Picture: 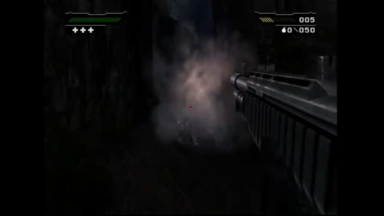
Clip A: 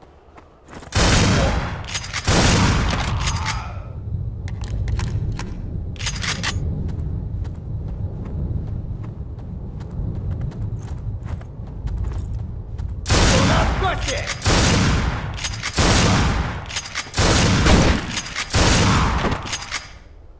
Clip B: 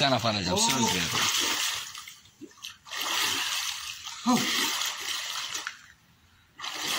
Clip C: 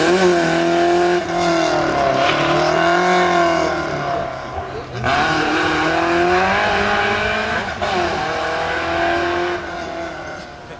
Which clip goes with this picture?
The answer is A